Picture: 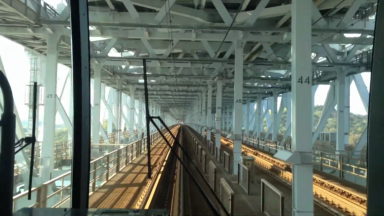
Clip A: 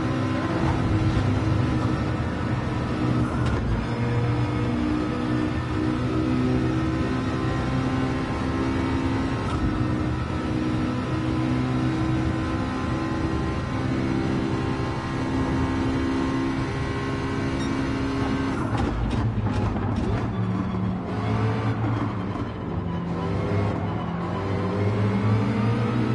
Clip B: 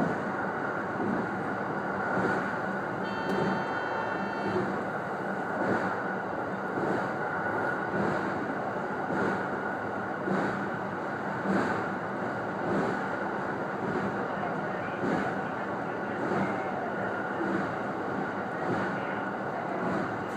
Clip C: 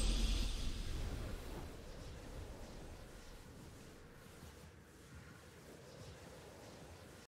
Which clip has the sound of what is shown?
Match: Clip B